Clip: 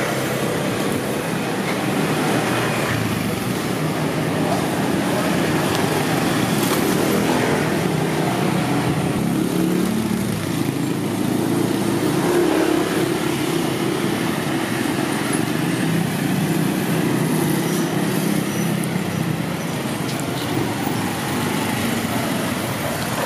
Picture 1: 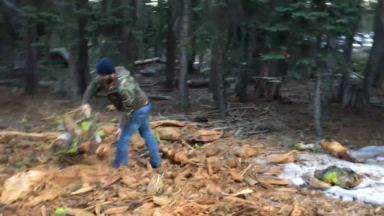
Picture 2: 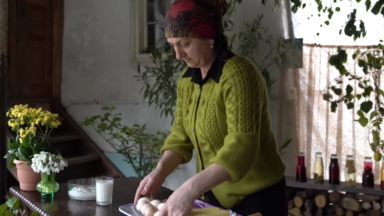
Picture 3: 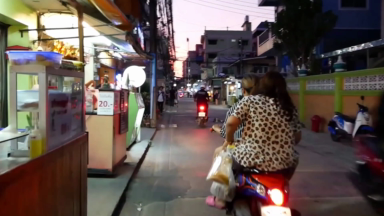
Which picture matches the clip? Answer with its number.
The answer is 3